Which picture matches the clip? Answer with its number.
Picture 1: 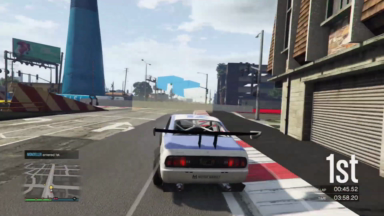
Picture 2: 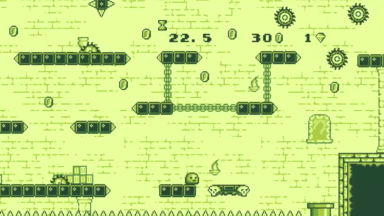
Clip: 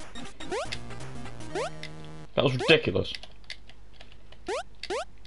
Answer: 2